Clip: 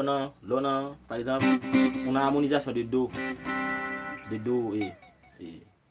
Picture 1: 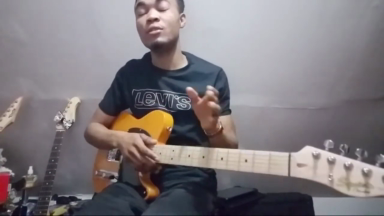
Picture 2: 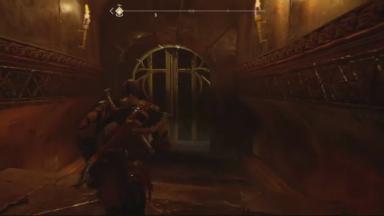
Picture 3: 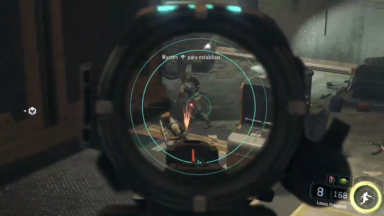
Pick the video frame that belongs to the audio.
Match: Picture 1